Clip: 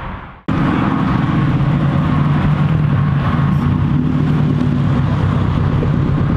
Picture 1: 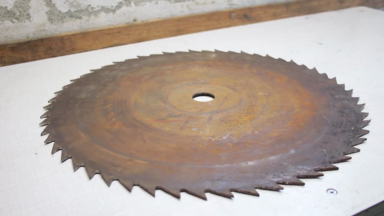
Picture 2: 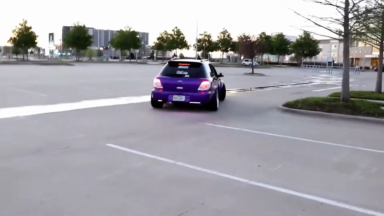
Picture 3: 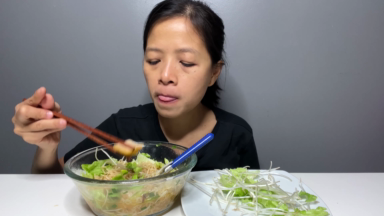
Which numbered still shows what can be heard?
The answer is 2